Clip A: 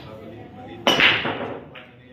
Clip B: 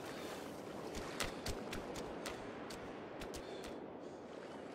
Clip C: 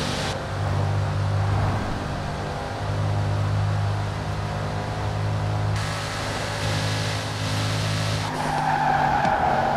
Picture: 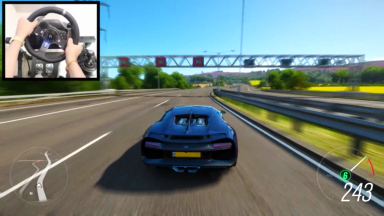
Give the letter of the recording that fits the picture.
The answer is C